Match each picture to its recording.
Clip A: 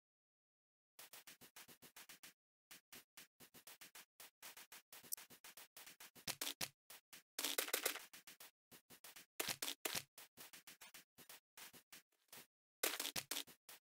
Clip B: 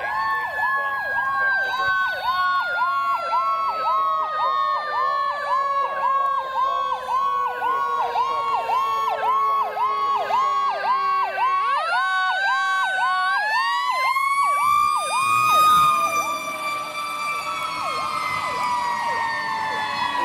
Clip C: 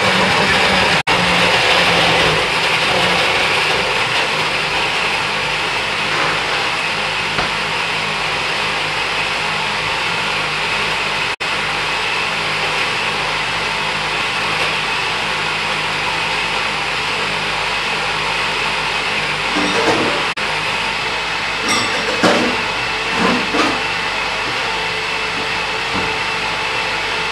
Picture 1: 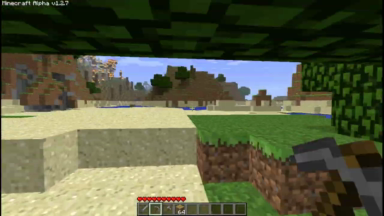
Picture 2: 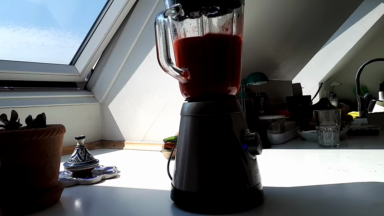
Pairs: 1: A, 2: C